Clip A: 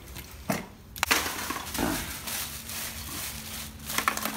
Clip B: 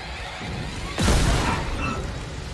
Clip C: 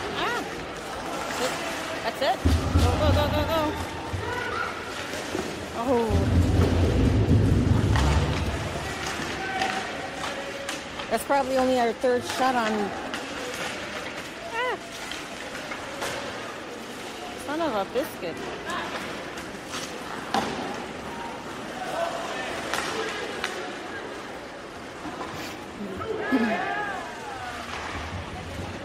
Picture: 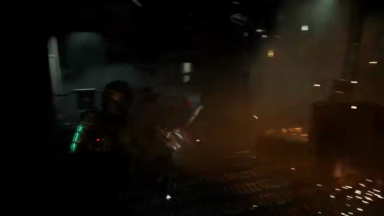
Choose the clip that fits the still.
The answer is B